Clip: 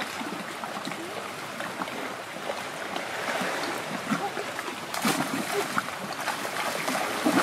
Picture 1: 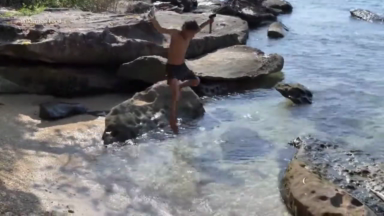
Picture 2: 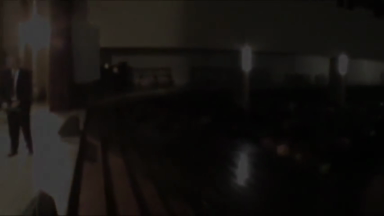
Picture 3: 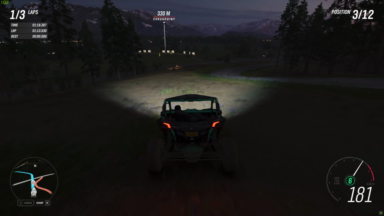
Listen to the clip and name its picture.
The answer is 1